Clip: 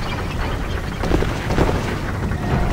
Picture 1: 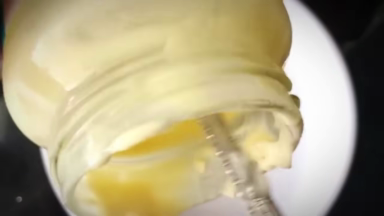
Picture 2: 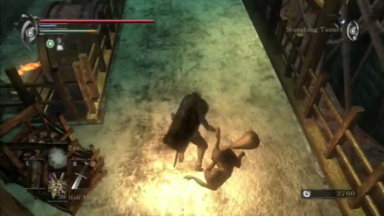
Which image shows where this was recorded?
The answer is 2